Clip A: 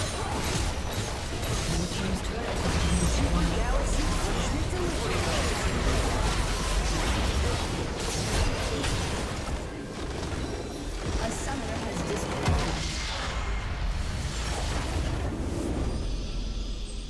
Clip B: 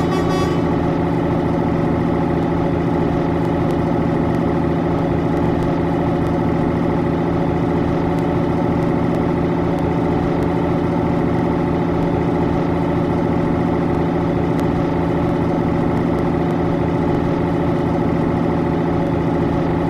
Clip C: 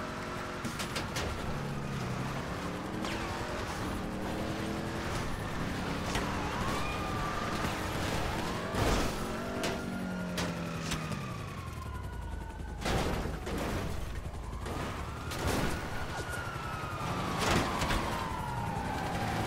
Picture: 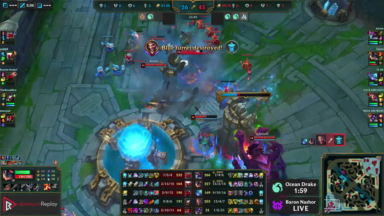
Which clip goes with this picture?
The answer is A